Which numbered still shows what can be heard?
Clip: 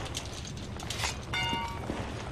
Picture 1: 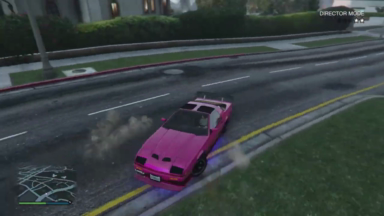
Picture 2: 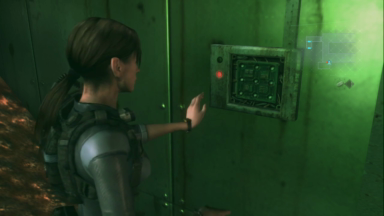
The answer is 2